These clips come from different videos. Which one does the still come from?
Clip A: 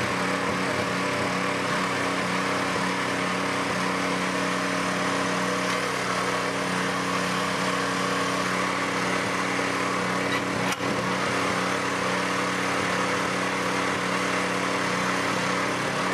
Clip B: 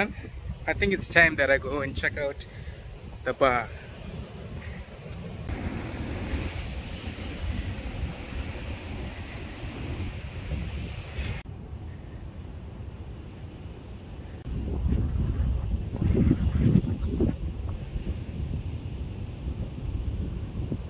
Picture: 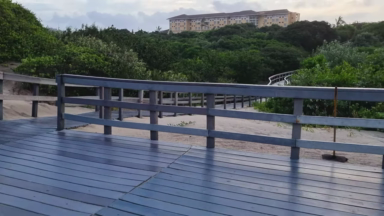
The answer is B